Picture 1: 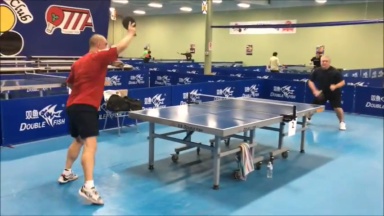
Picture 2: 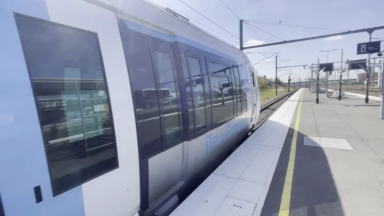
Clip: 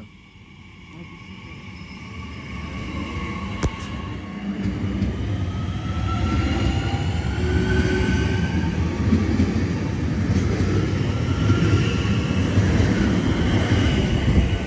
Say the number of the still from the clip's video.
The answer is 2